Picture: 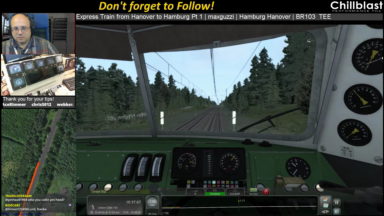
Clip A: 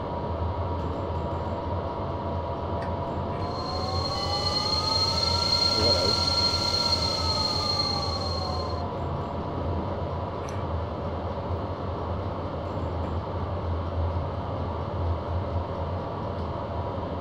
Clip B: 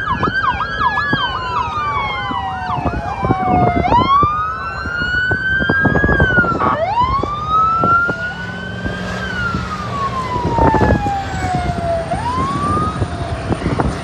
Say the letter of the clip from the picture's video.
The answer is A